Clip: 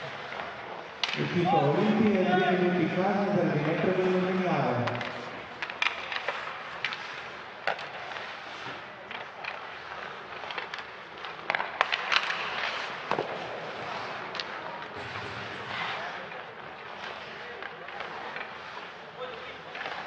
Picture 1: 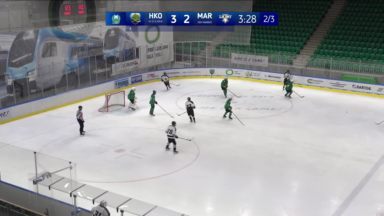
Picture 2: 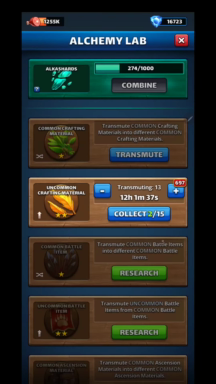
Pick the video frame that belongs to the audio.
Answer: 1